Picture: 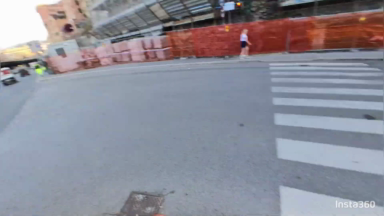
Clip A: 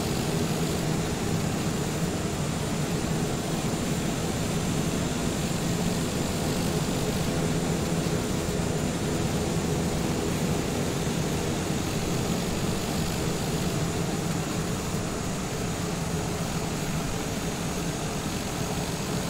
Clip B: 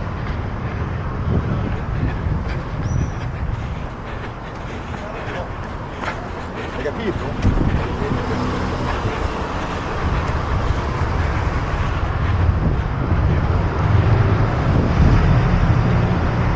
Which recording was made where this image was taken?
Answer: B